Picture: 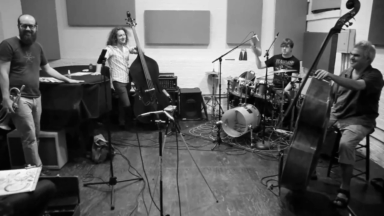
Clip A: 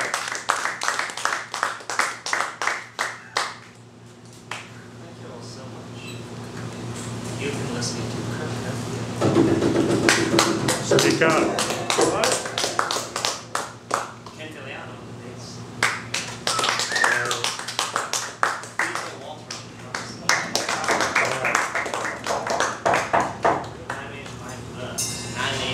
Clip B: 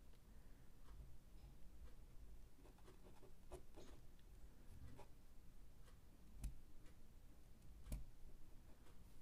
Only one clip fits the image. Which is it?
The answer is A